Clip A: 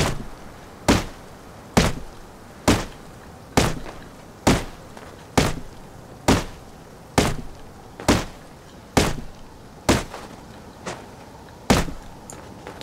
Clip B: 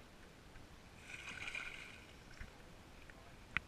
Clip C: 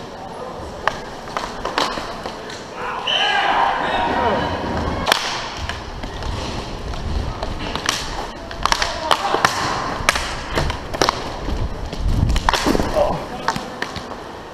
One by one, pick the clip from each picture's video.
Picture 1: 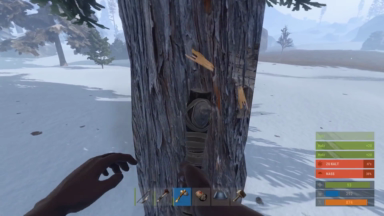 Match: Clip A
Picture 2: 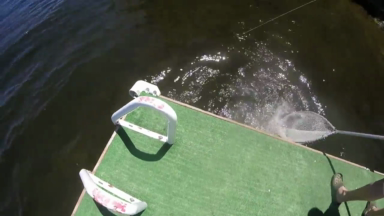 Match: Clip B